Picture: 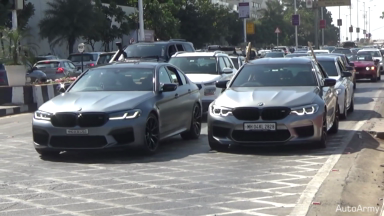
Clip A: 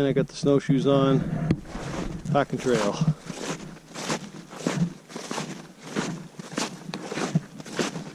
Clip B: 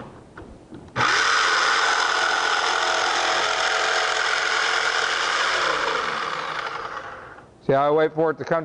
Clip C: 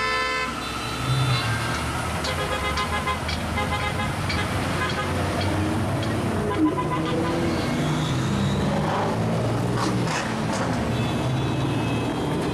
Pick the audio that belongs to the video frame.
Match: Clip C